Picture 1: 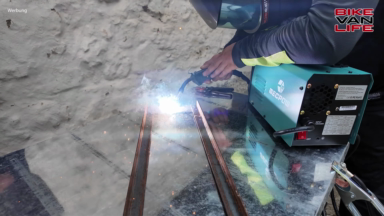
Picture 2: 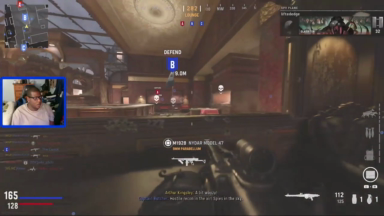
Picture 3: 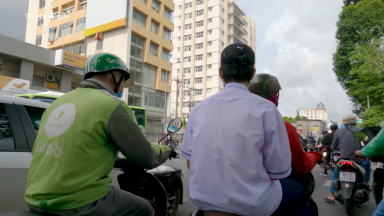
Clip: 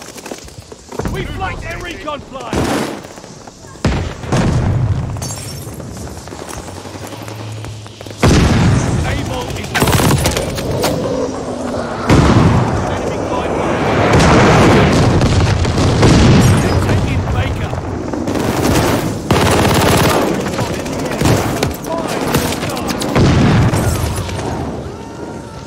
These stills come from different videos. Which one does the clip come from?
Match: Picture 2